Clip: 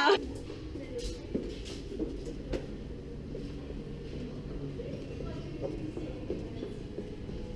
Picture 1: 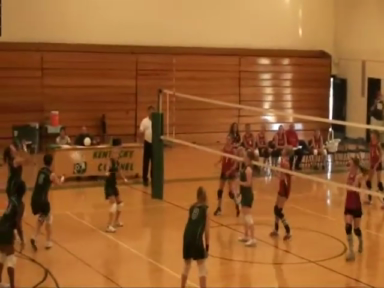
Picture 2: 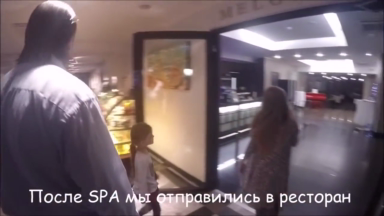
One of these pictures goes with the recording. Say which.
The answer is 2